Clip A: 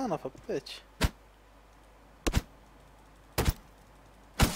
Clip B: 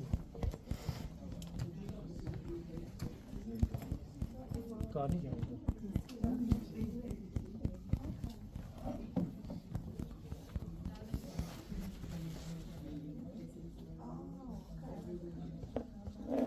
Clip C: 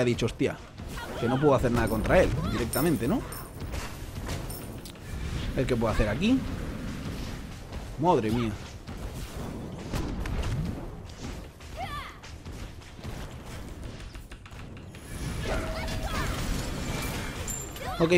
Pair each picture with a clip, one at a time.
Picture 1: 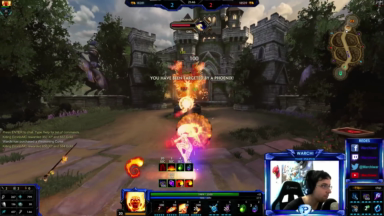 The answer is C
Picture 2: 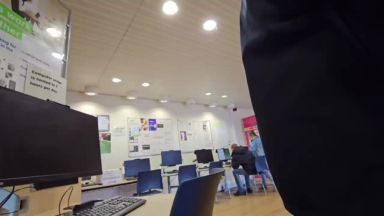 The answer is B